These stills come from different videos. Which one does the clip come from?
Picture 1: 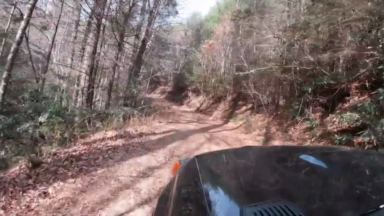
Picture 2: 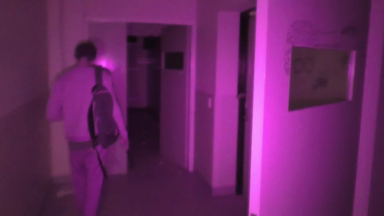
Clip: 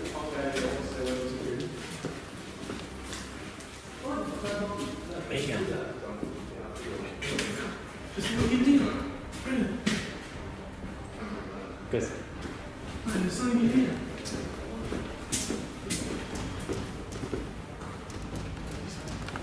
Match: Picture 2